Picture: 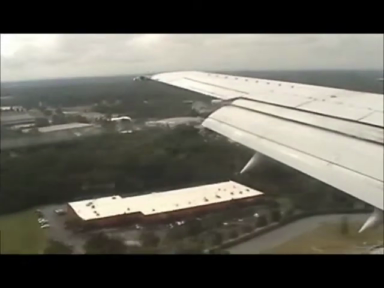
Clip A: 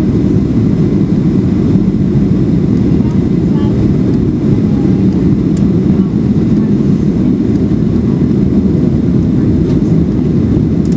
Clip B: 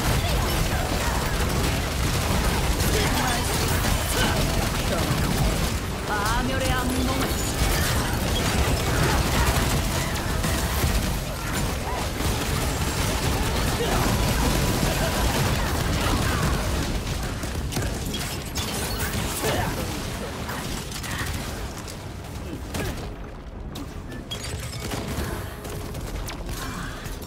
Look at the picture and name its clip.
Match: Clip A